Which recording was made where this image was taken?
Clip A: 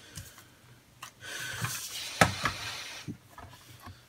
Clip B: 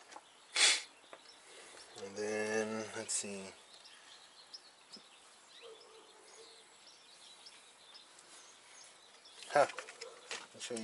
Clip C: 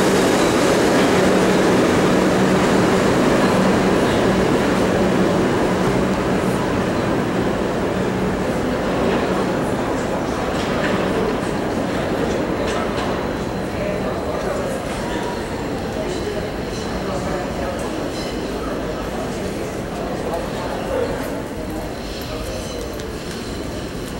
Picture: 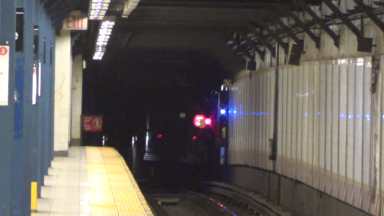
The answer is C